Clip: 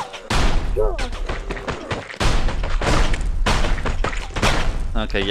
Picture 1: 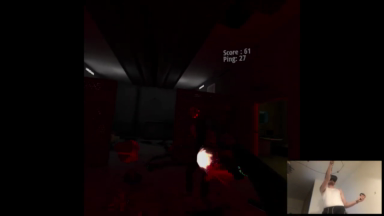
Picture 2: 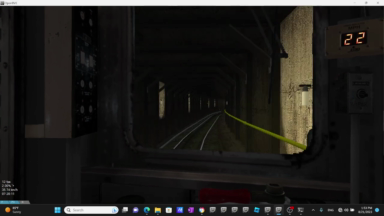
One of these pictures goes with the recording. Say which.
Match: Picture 1